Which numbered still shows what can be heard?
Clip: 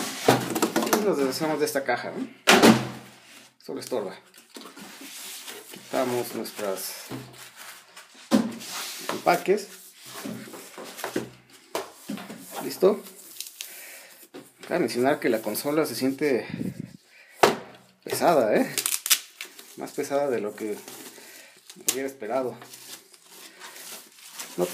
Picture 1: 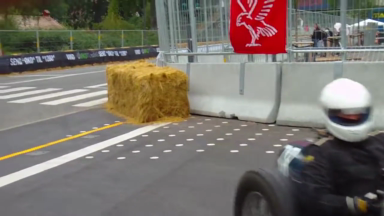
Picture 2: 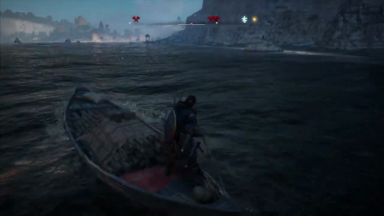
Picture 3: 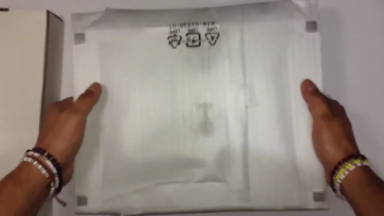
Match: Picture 3